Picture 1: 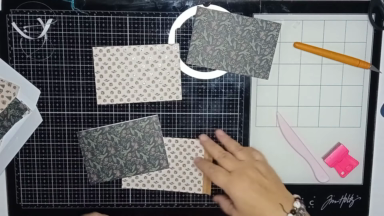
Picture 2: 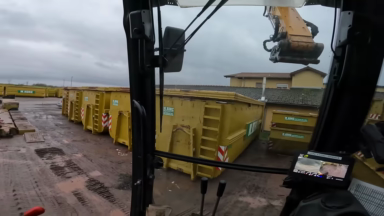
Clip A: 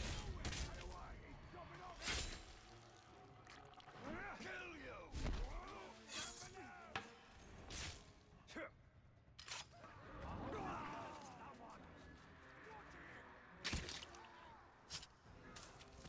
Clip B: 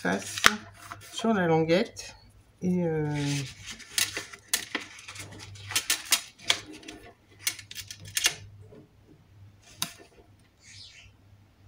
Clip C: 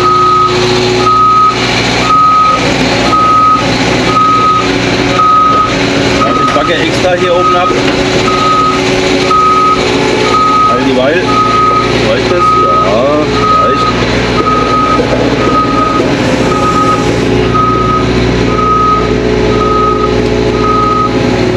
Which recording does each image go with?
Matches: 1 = B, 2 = C